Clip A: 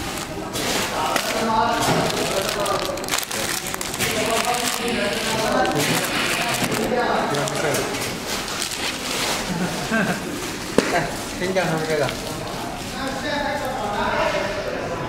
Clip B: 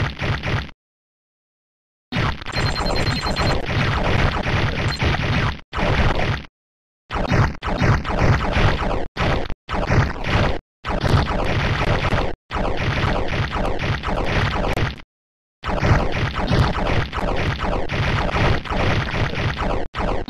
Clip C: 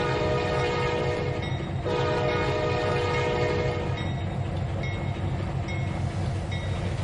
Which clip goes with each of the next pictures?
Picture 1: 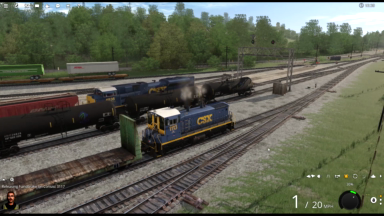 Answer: C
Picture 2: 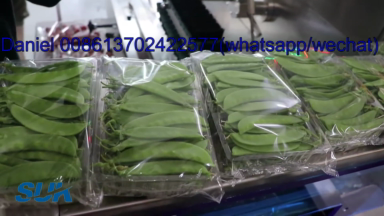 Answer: A